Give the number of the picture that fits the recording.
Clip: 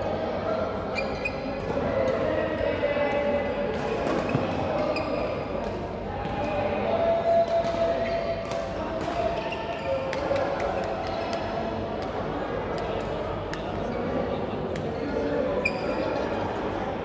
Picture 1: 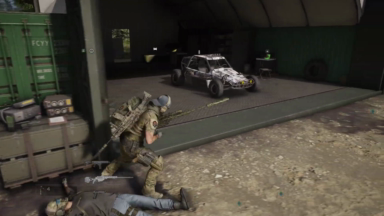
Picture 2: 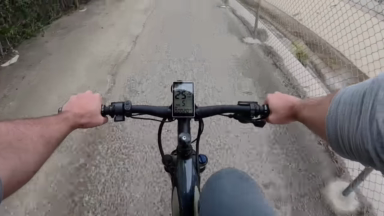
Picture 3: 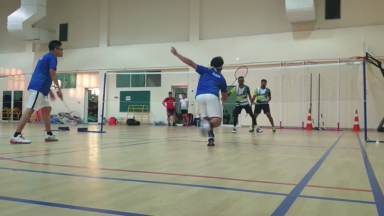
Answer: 3